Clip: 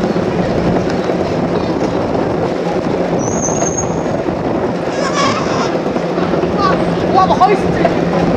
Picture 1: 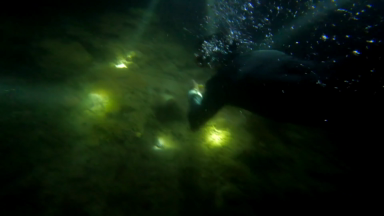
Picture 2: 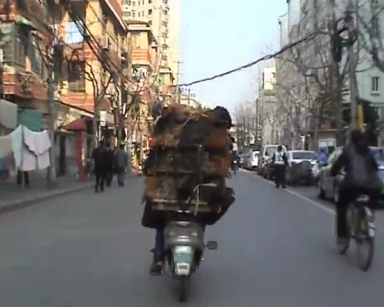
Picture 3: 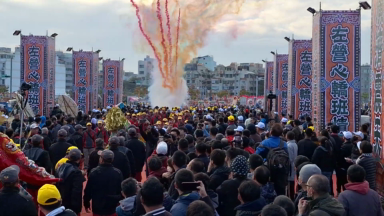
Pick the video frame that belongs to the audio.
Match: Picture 2